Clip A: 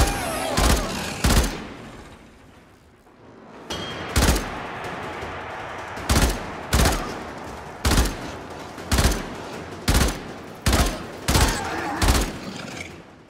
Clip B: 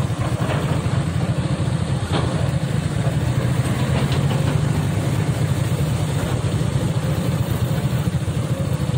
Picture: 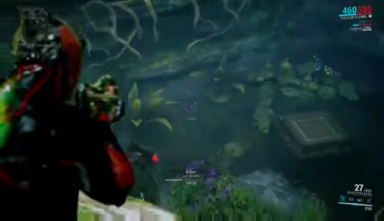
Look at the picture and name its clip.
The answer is A